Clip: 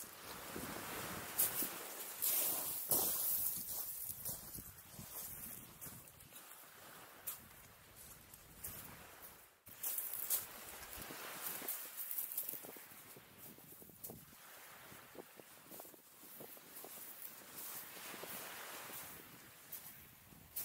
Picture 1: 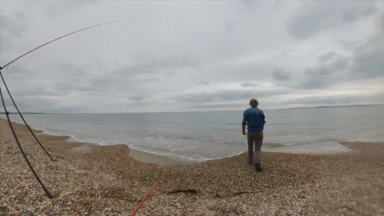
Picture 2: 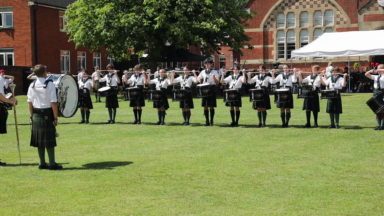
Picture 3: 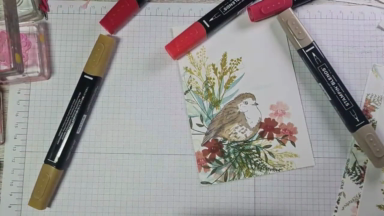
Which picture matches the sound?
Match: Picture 1